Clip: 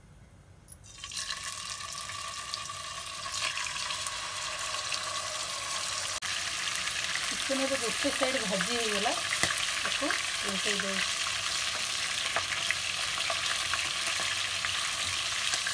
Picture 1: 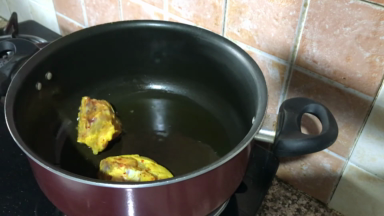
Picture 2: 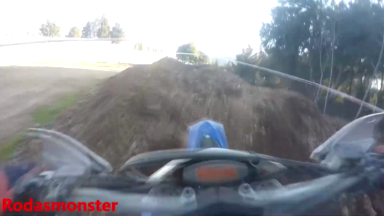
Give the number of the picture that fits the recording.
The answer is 1